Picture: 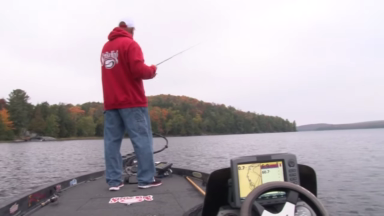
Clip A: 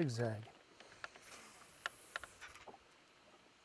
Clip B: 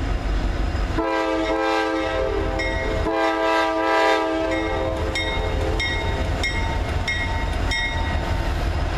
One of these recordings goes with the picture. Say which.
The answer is A